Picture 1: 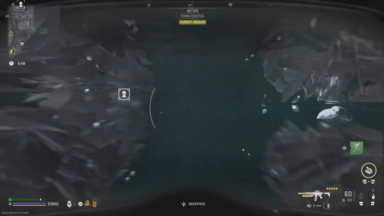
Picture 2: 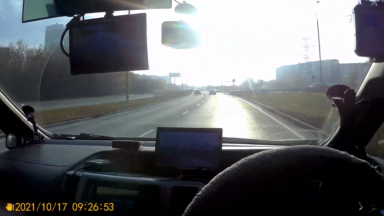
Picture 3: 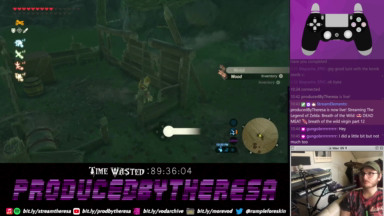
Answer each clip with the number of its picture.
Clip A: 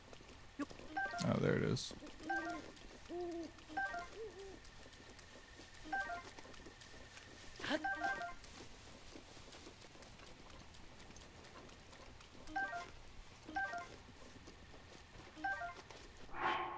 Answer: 3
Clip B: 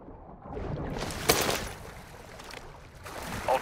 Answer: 1